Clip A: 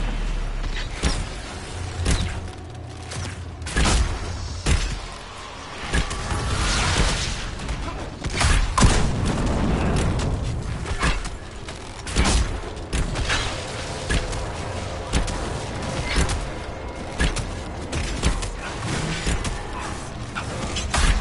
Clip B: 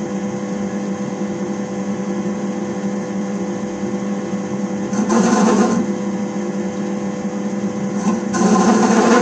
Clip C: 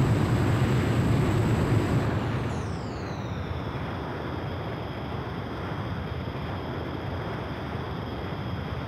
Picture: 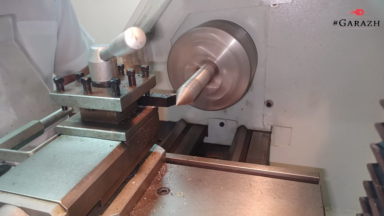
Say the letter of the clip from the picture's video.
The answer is B